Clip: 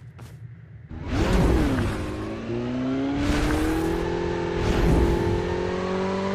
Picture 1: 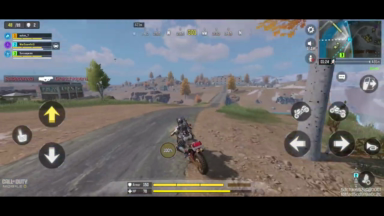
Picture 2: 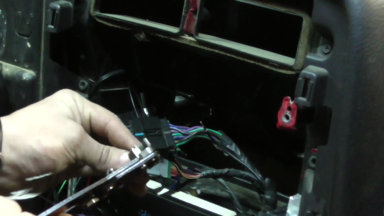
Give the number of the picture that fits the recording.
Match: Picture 1